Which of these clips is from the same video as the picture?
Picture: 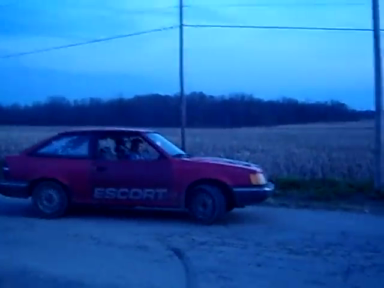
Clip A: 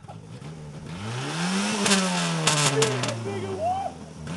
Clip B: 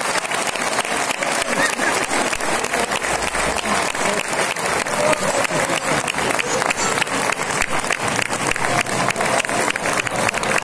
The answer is A